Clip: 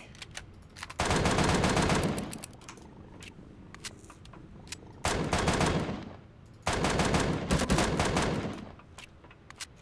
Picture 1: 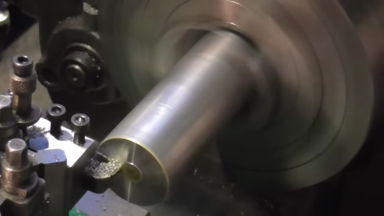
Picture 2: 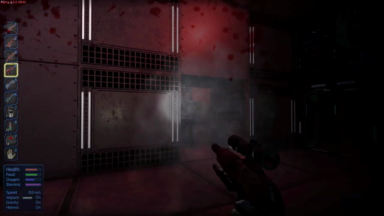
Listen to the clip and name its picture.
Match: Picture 2